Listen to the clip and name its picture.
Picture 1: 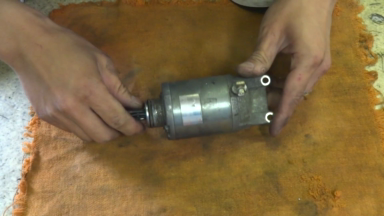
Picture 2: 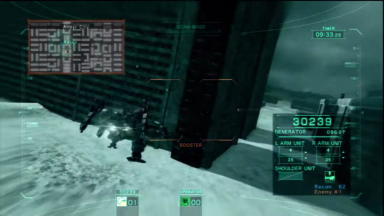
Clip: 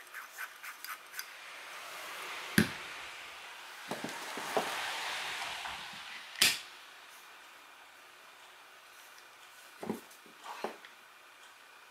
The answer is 1